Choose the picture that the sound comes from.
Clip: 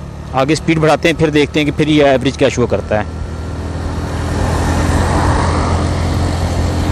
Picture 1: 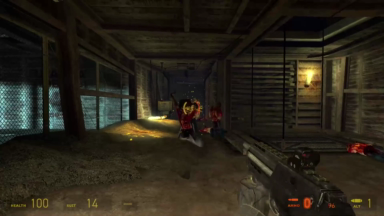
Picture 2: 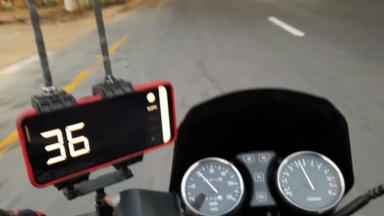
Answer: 2